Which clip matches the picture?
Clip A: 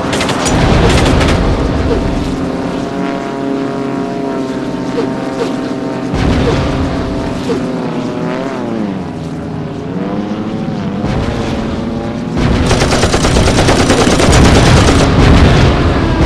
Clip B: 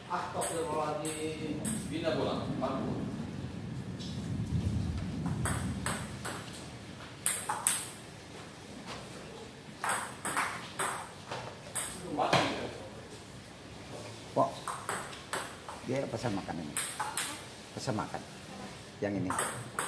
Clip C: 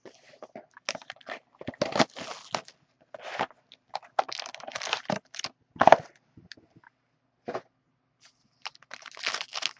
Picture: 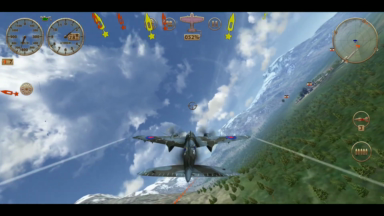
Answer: A